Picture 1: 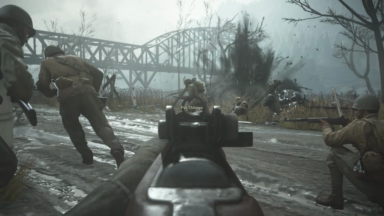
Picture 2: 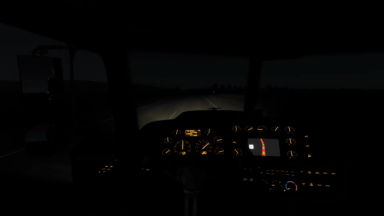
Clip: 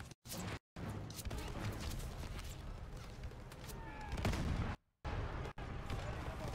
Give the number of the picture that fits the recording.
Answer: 1